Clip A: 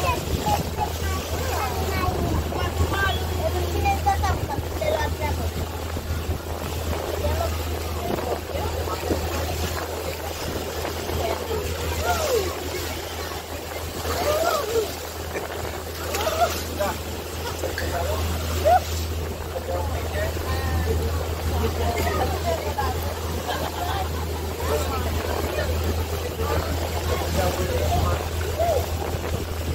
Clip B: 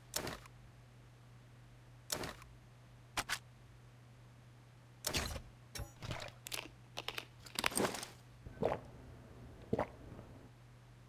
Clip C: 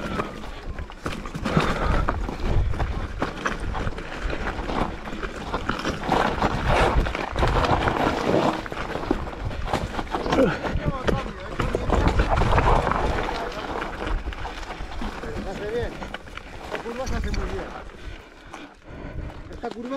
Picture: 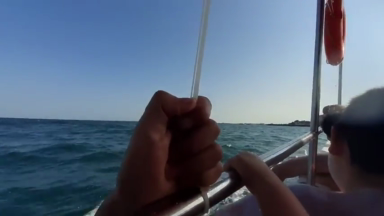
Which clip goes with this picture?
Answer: A